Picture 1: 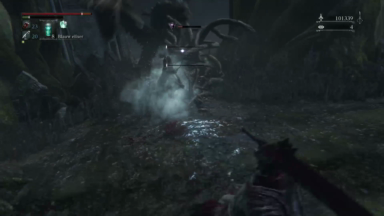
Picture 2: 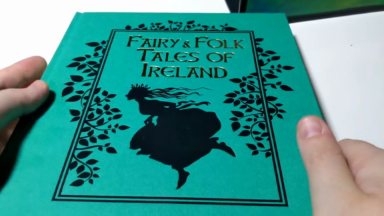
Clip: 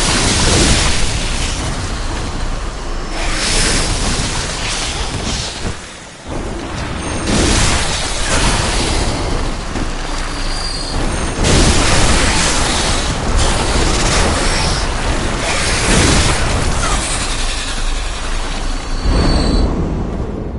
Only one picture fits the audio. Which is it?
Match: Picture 1